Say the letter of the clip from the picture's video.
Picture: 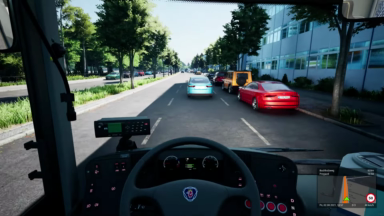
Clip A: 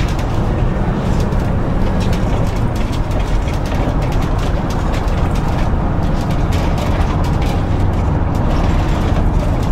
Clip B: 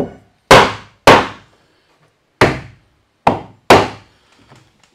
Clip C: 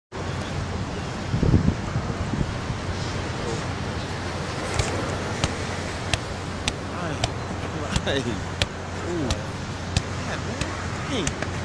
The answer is A